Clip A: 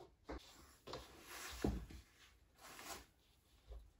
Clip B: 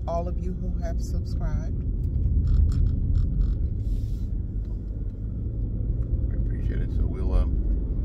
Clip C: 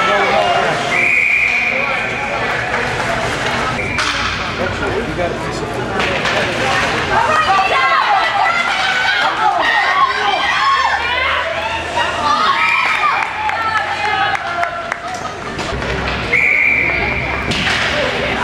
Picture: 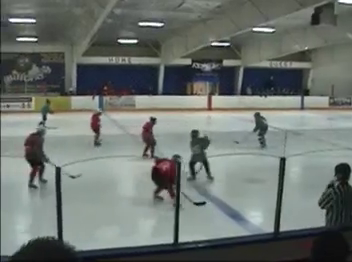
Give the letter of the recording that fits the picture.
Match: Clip C